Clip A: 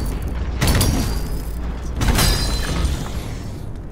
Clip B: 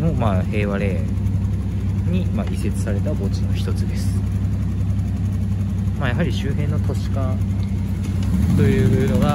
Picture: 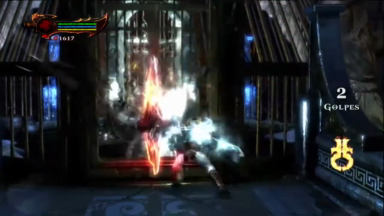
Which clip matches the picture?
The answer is A